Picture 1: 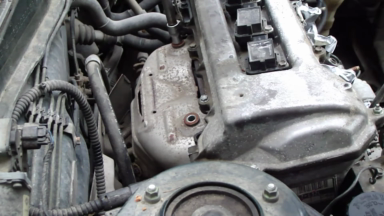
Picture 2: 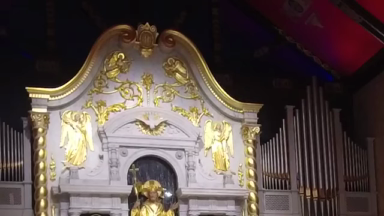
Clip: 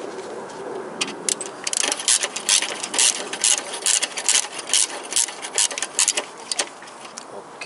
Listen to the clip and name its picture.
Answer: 1